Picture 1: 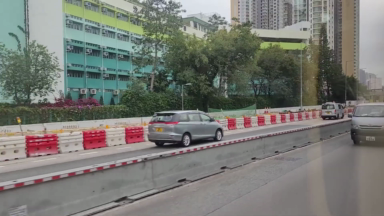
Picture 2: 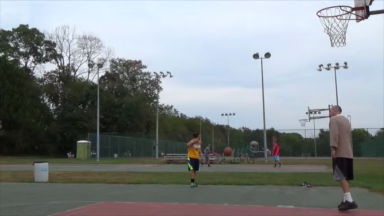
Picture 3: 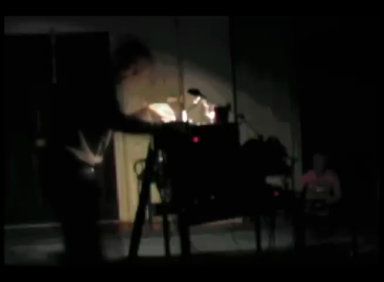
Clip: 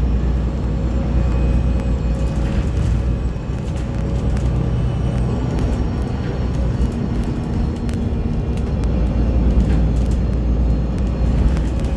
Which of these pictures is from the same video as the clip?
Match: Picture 1